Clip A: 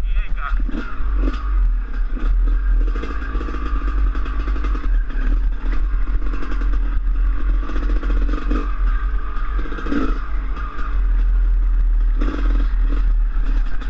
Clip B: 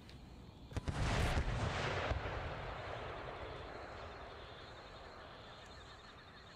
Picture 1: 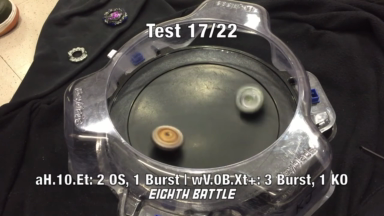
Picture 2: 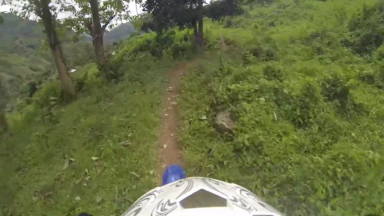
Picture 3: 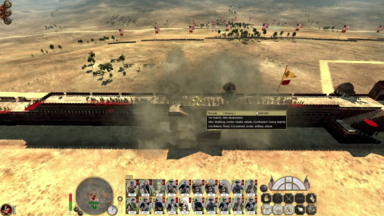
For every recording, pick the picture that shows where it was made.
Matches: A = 2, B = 3